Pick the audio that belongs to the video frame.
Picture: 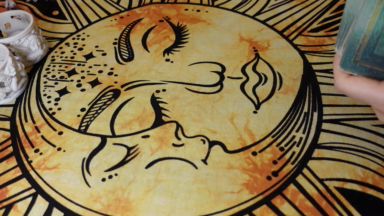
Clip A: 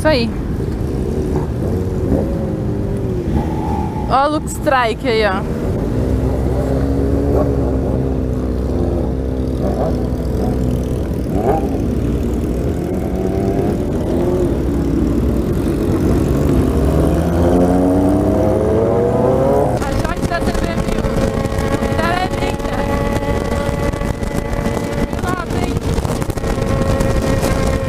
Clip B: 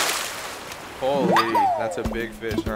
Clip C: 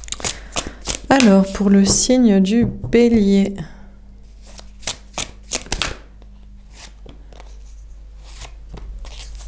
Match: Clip C